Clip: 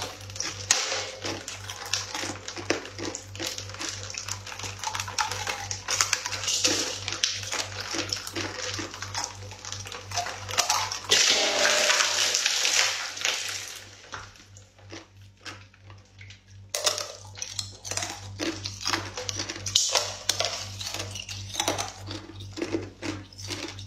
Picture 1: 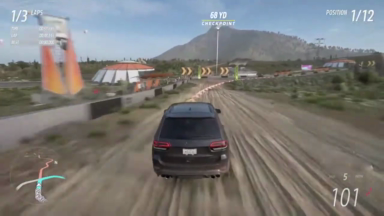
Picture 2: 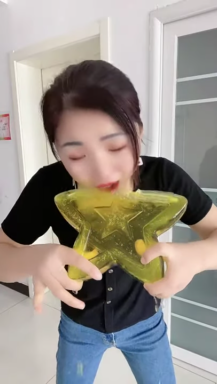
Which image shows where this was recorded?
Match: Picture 2